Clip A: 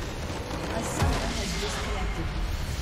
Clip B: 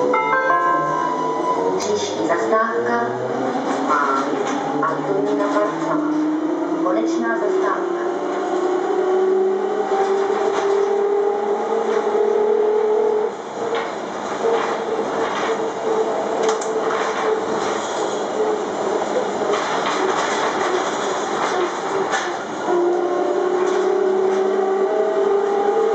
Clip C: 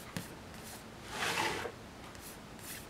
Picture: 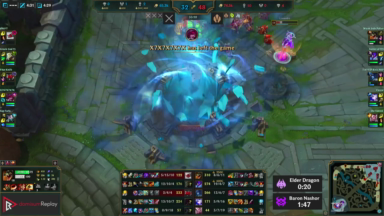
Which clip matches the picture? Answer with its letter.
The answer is A